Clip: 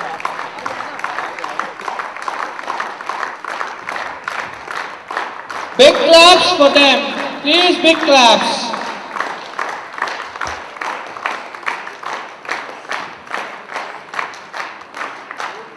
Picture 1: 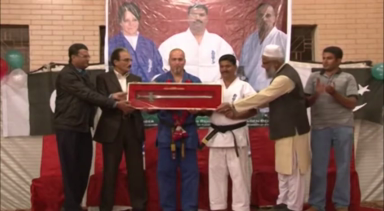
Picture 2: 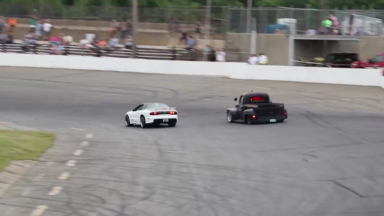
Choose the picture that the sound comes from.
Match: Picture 1